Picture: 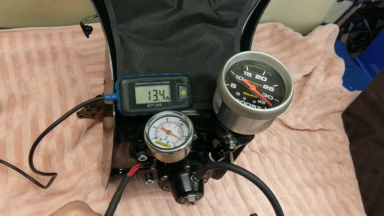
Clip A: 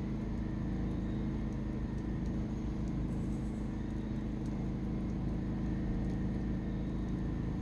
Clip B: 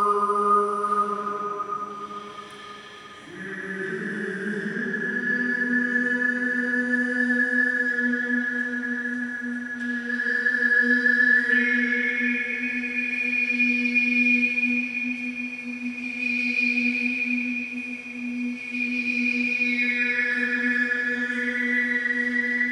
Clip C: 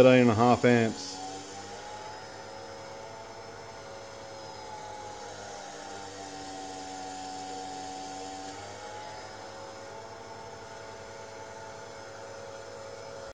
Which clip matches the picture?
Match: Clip C